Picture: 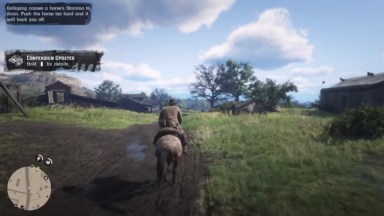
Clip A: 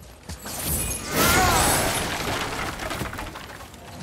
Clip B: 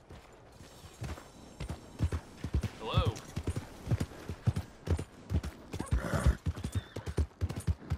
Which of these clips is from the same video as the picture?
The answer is B